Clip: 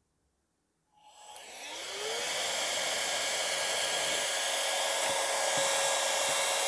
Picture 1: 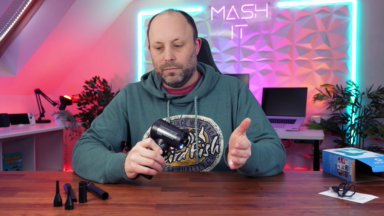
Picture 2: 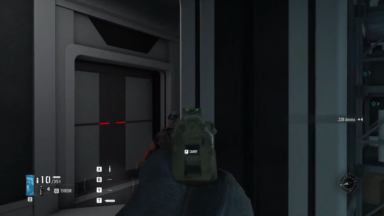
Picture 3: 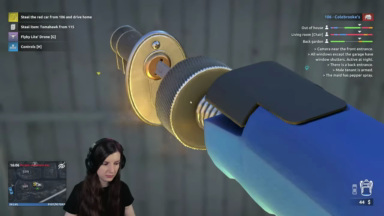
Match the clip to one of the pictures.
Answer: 1